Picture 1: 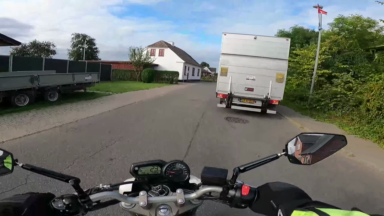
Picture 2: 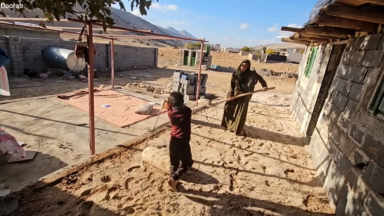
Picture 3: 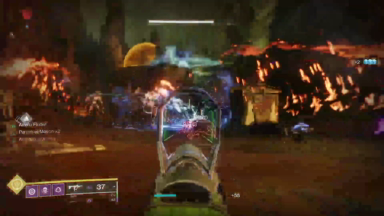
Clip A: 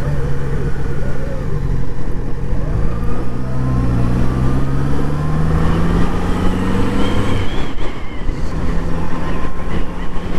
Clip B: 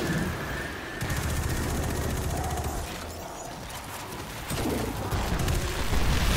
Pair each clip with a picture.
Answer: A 1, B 3